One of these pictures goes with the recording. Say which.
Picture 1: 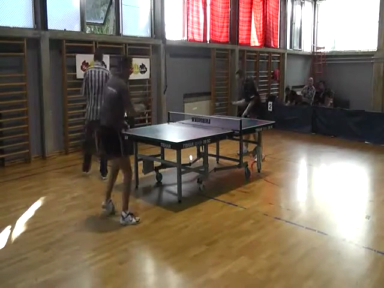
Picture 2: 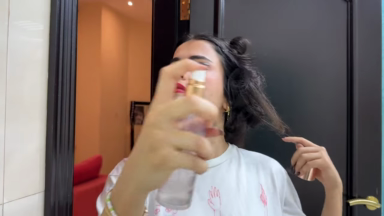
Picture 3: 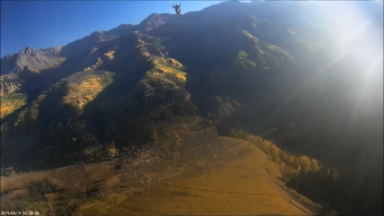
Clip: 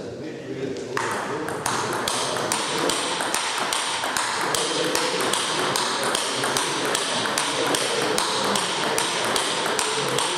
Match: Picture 1